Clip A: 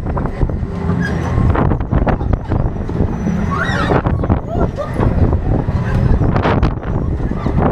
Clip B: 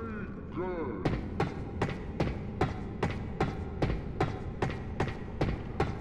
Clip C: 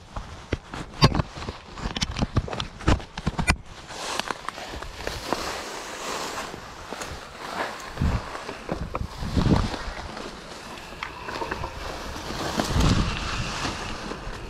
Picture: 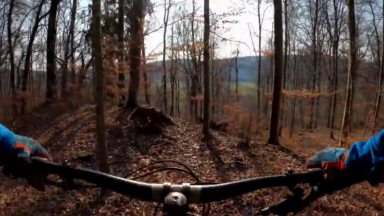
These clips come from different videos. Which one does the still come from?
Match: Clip C